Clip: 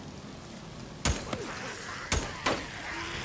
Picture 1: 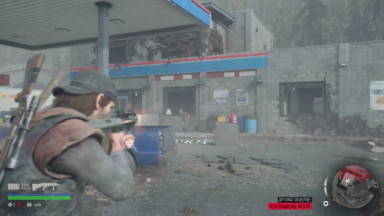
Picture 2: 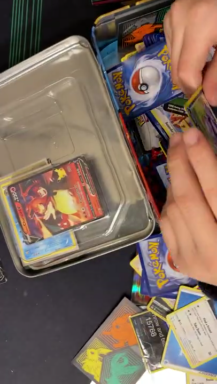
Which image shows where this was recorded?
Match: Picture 1